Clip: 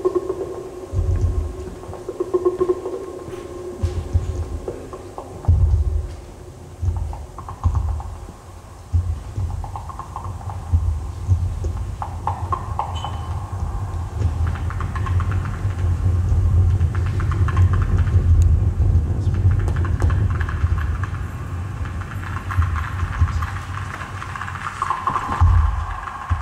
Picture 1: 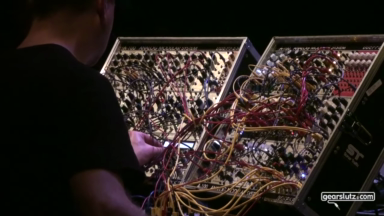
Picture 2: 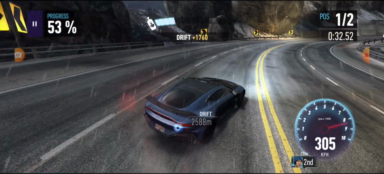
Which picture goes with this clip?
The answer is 1